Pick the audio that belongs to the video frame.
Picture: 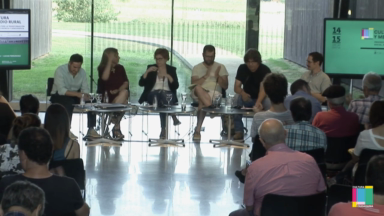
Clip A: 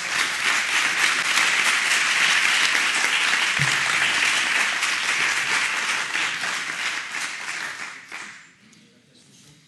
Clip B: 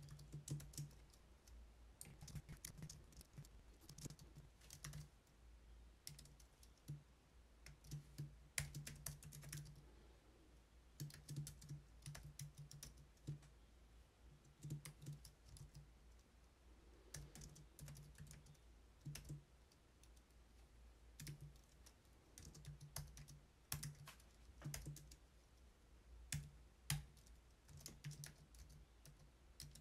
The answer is A